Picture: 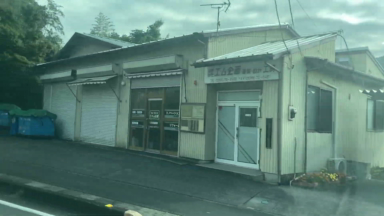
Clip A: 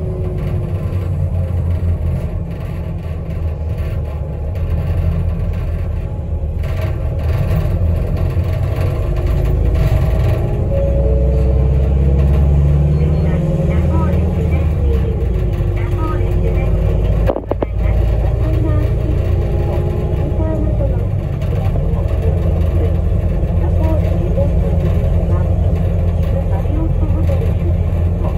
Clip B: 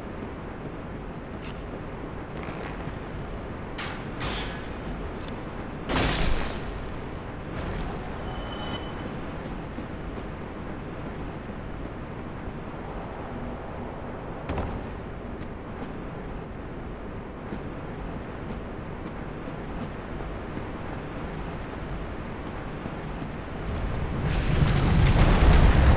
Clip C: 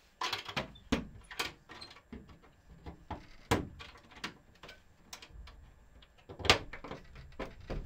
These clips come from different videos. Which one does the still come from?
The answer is A